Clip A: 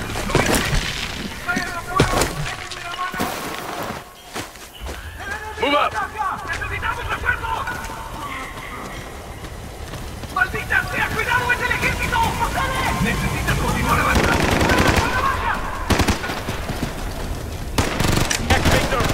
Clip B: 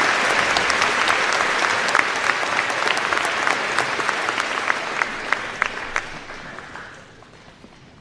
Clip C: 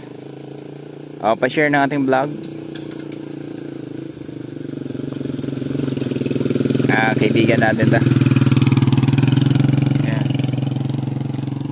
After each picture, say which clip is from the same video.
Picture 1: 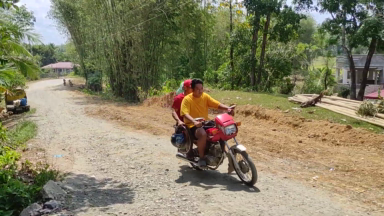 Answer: C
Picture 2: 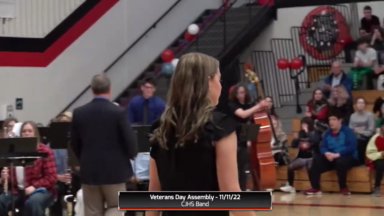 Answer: B